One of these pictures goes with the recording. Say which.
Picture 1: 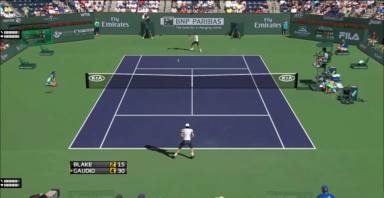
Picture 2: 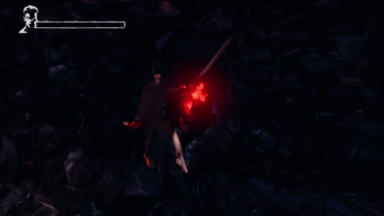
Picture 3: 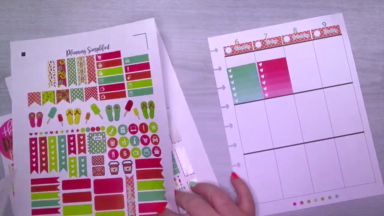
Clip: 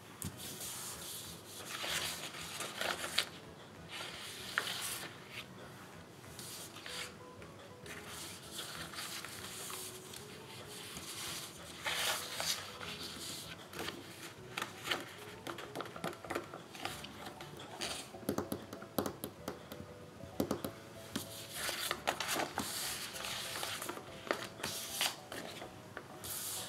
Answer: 3